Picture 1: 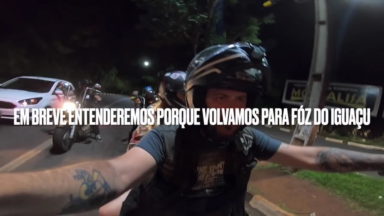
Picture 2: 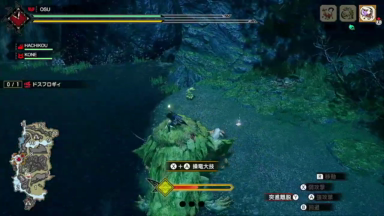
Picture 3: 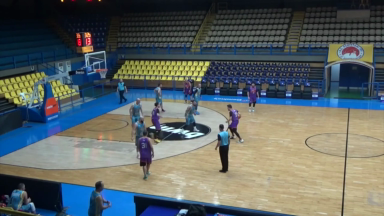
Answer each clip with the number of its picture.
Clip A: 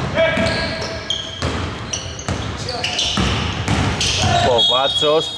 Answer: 3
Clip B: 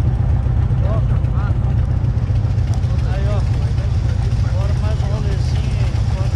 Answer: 1